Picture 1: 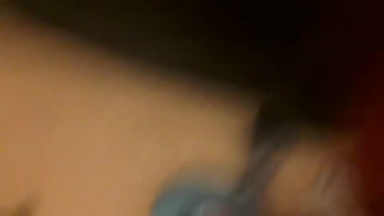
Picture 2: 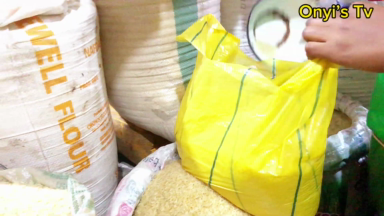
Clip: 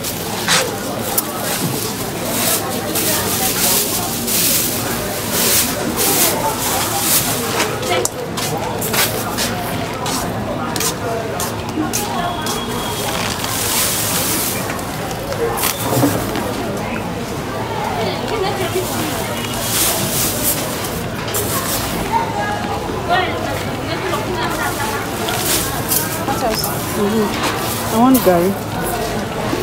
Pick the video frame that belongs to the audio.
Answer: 2